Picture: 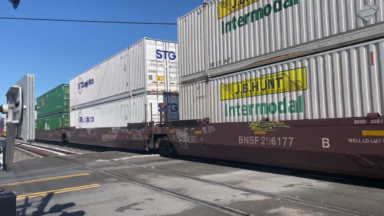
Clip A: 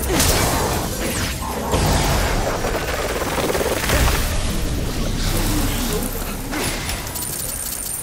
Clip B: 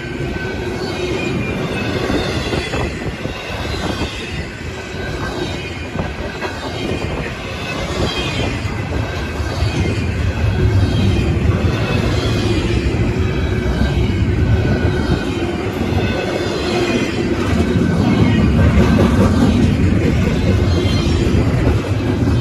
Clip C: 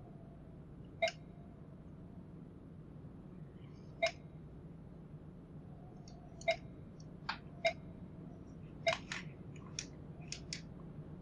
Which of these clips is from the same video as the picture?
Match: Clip B